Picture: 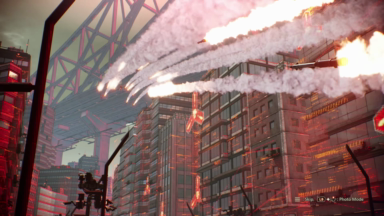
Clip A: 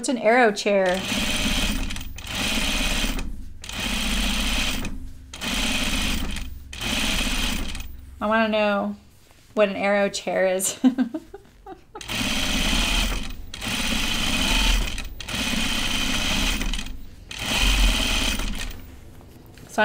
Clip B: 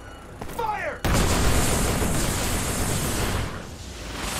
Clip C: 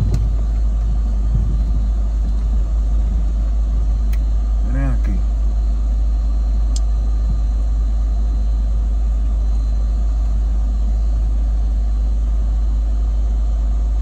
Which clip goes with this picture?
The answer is B